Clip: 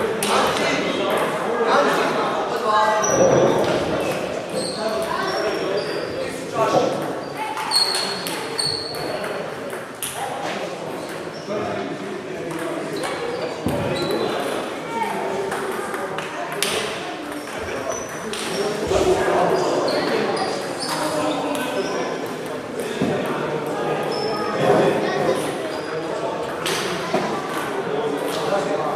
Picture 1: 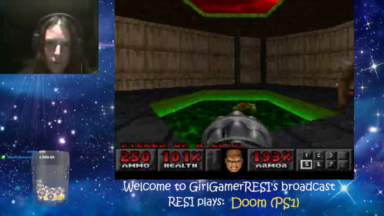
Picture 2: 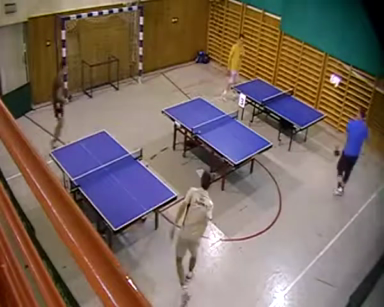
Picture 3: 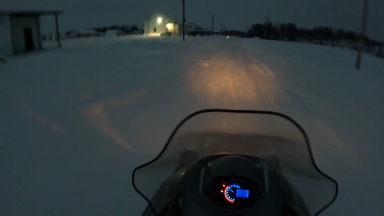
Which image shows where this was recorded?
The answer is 2